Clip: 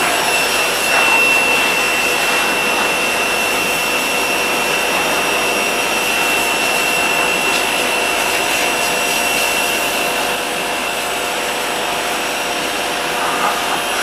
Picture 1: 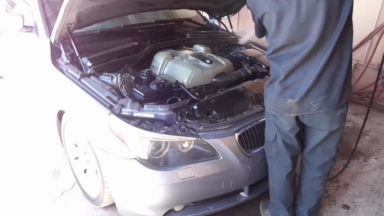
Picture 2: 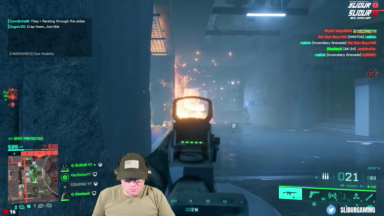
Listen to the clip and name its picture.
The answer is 1